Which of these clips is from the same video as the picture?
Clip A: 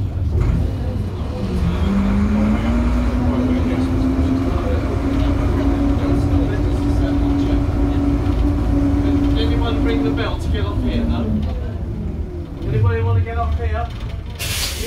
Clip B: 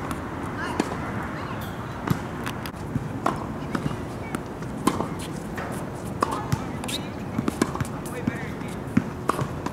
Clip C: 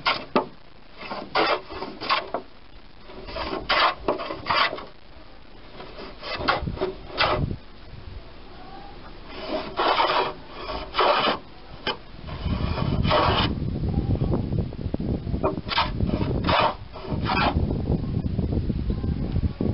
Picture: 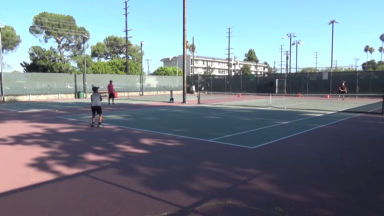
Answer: B